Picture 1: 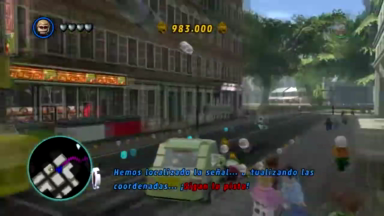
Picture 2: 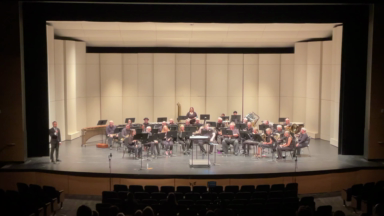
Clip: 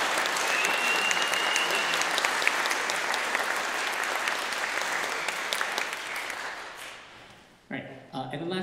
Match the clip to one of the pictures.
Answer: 2